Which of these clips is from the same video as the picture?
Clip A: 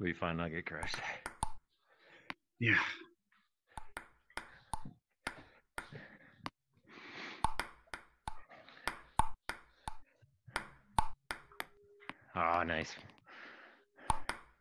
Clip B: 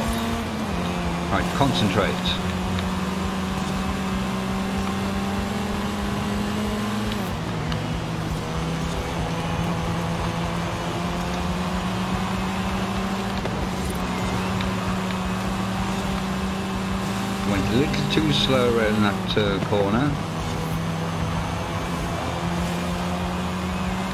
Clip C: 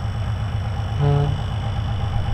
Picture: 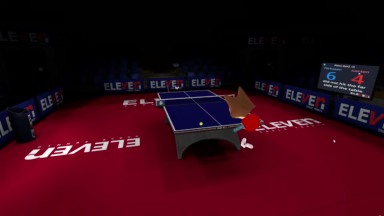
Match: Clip A